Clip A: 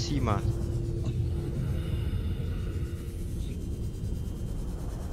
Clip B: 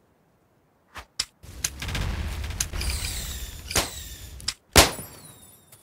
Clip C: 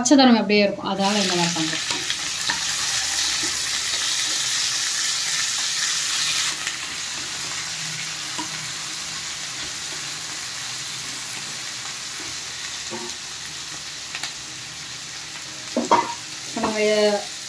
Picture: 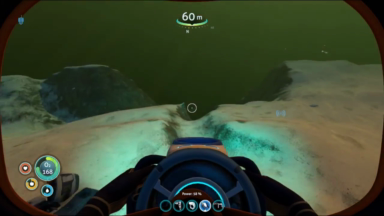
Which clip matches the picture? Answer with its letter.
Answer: A